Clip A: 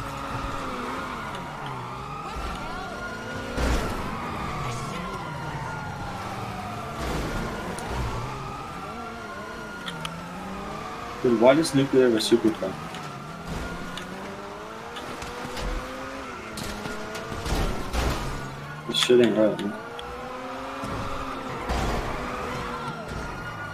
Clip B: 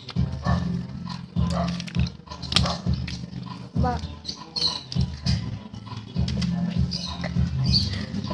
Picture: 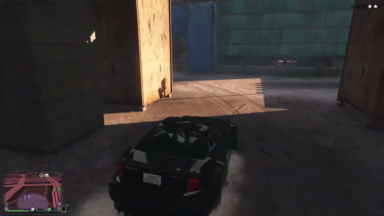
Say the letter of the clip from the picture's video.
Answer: A